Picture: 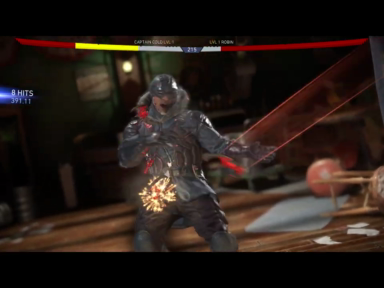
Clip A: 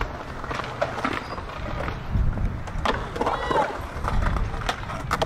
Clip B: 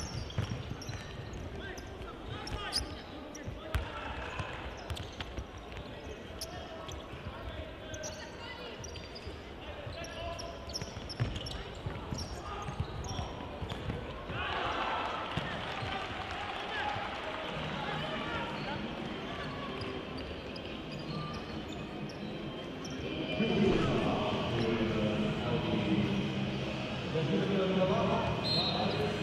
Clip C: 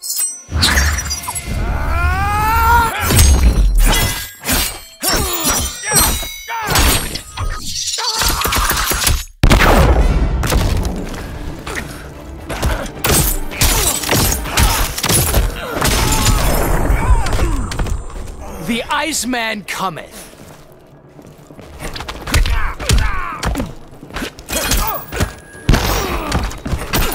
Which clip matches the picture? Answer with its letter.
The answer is C